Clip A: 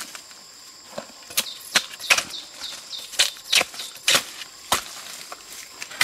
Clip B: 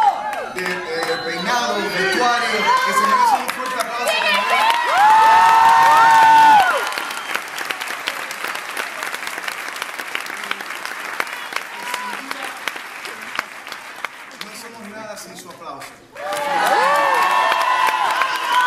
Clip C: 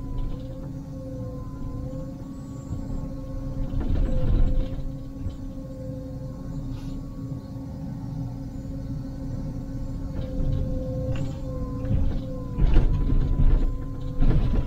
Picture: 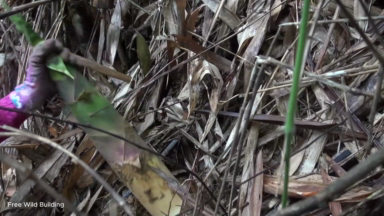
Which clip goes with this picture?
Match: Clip A